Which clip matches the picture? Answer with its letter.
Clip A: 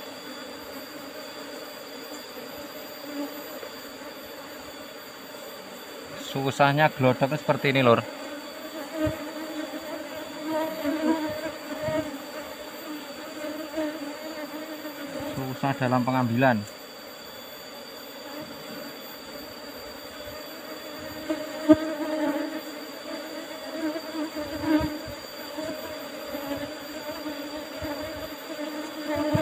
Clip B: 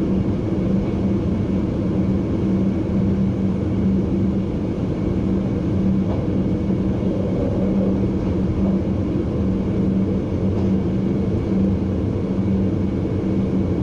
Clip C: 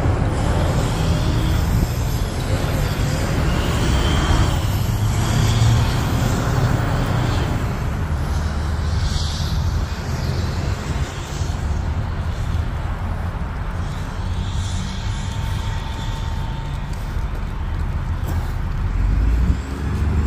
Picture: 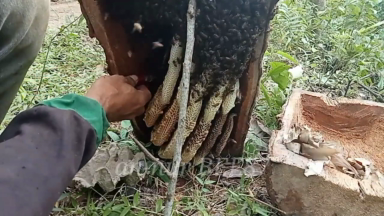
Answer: A